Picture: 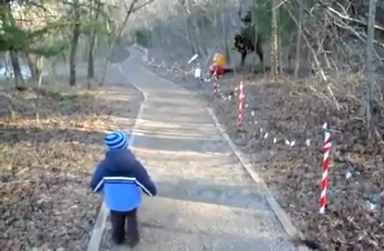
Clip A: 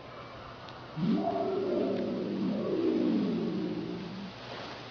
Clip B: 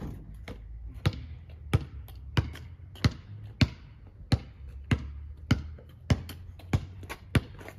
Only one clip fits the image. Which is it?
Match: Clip A